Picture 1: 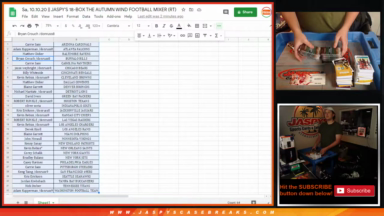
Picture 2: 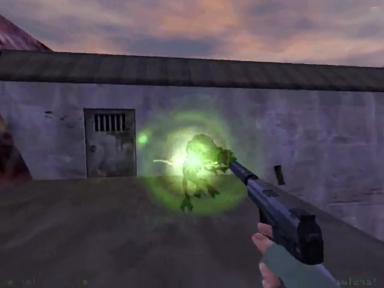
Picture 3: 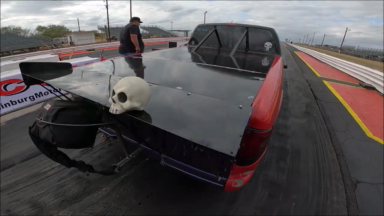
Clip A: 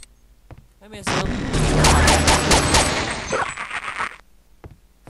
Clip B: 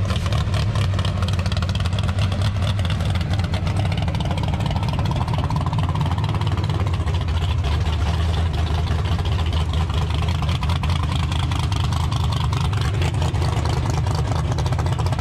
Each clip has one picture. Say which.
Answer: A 2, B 3